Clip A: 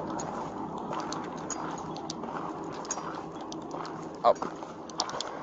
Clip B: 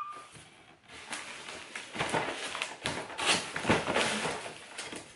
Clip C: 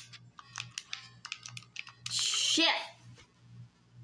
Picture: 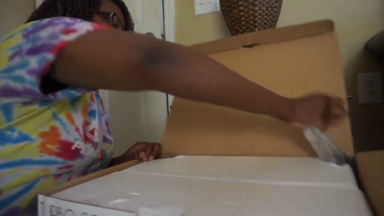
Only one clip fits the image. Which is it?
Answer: B